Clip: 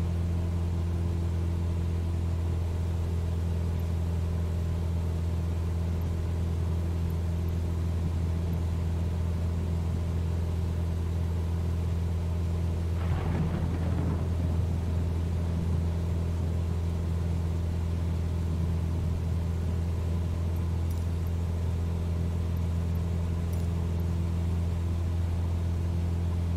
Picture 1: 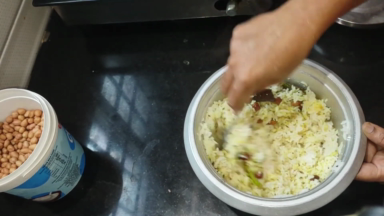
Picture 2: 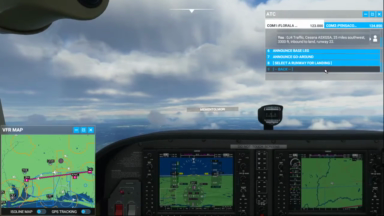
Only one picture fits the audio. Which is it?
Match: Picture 2